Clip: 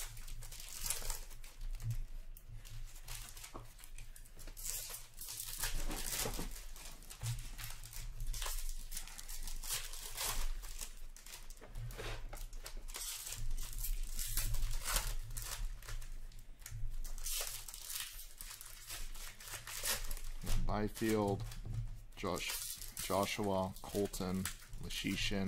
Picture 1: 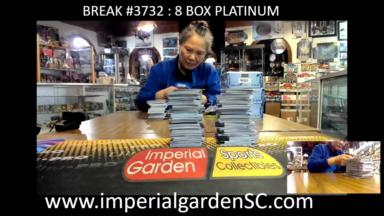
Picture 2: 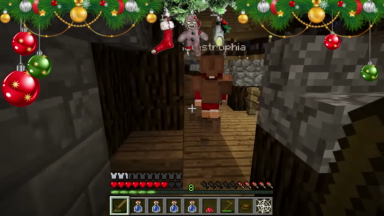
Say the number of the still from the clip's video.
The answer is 1